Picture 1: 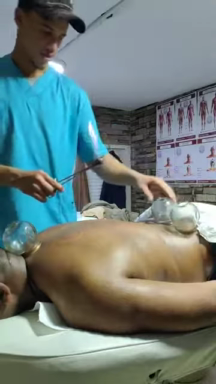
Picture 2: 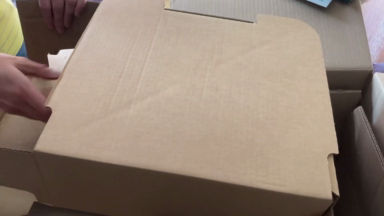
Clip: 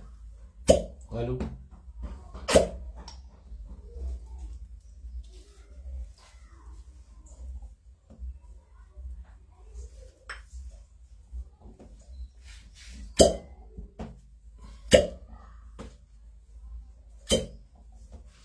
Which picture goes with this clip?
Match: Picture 1